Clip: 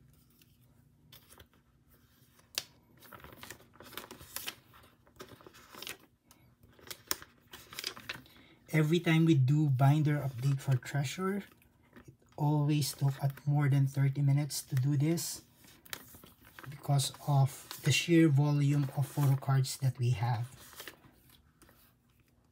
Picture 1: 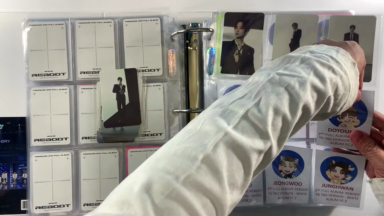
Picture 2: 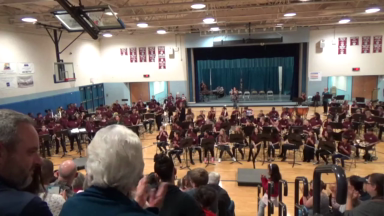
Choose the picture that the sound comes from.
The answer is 1